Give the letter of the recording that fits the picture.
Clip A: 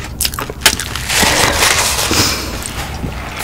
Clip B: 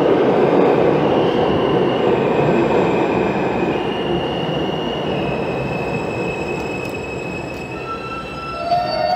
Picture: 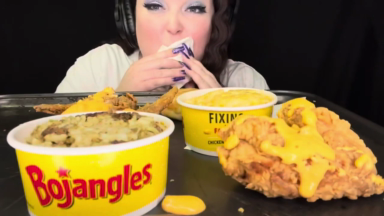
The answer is A